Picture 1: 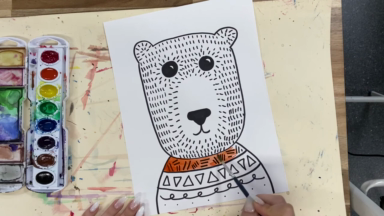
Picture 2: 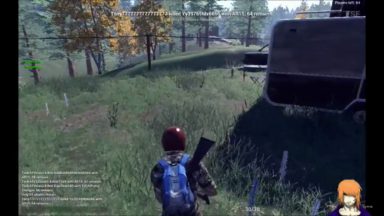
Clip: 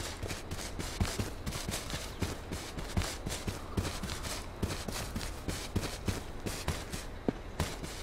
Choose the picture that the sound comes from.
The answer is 2